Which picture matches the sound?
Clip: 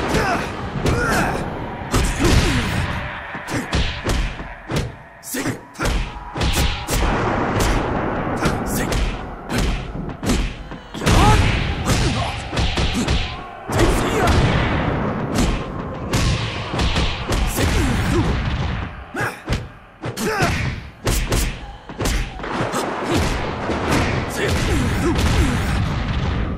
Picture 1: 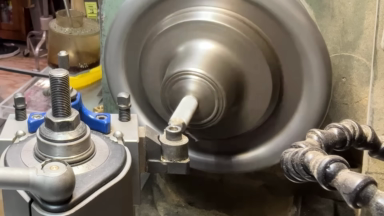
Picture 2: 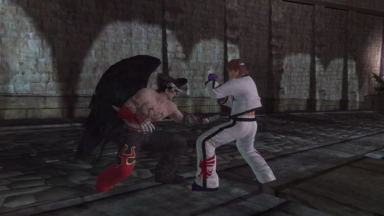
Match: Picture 2